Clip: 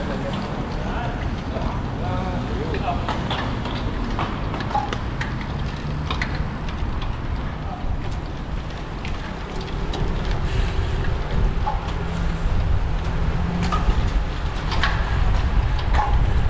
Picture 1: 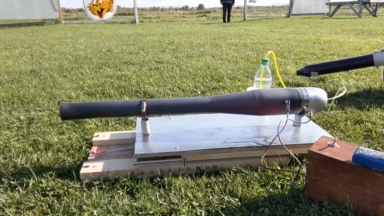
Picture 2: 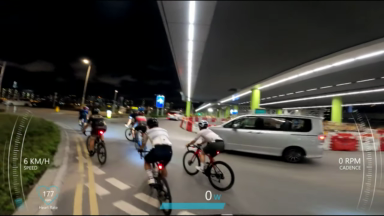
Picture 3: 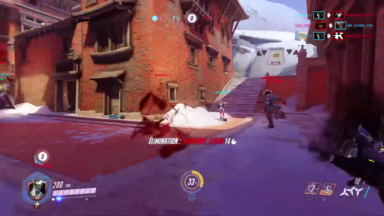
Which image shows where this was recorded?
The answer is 2